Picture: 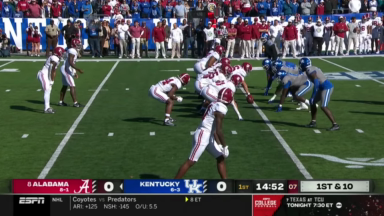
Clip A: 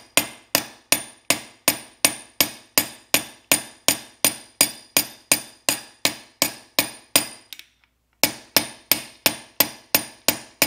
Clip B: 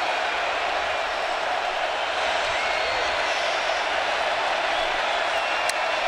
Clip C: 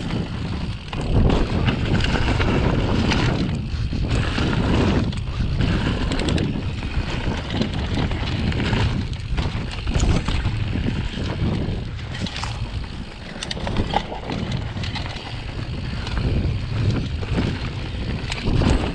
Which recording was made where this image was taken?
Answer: B